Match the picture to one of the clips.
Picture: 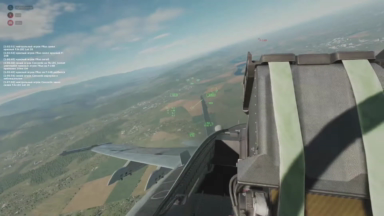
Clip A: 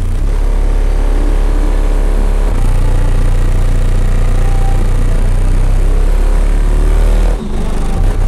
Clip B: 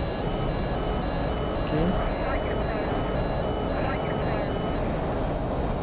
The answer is B